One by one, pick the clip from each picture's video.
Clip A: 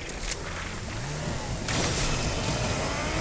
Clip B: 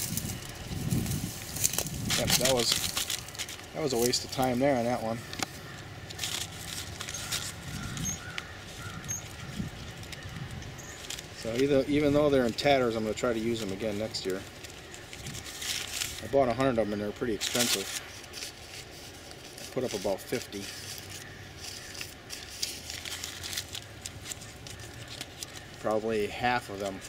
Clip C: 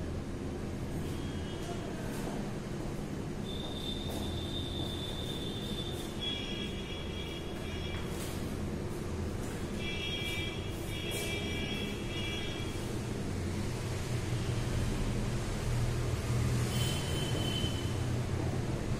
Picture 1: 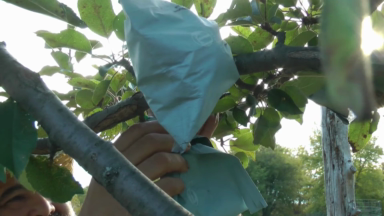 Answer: B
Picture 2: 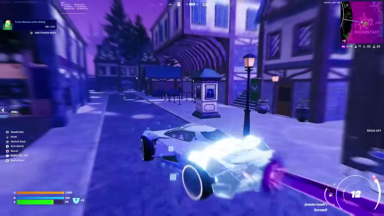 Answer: A